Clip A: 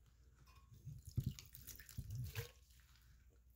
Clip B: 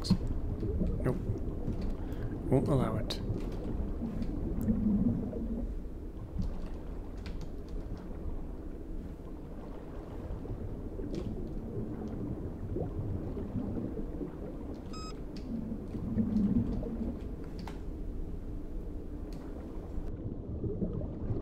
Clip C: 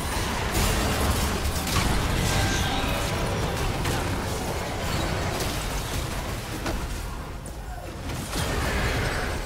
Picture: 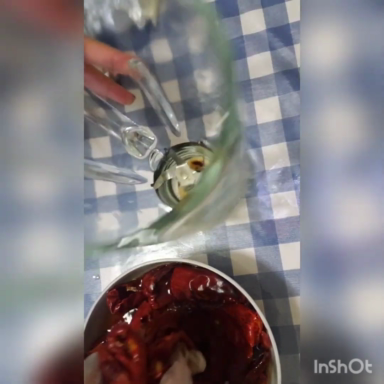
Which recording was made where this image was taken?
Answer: A